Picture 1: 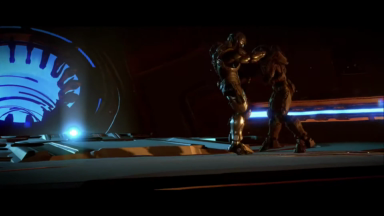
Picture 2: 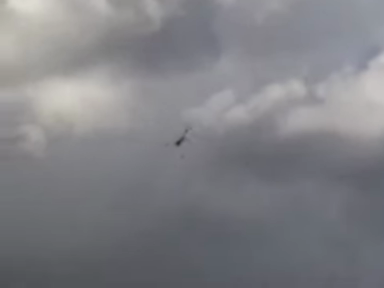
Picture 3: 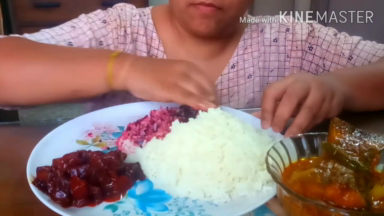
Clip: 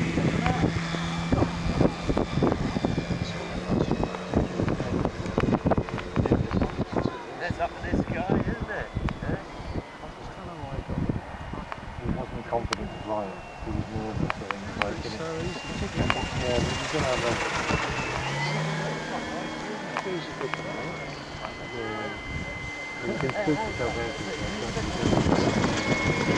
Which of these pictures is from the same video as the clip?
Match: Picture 2